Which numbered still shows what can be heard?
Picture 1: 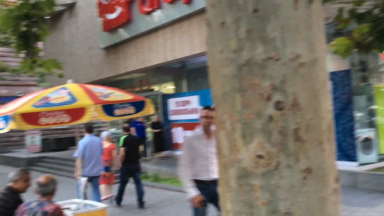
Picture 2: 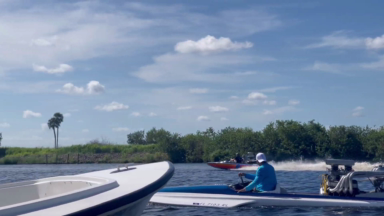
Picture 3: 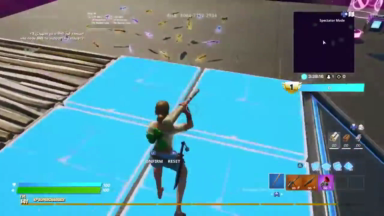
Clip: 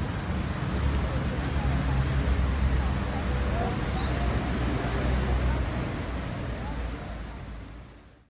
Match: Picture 1